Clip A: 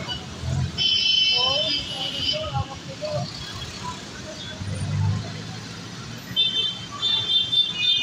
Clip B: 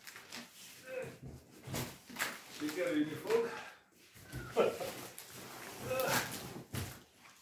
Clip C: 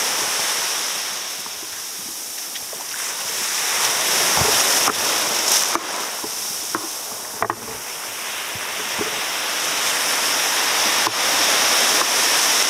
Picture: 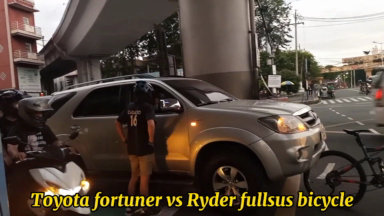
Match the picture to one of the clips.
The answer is A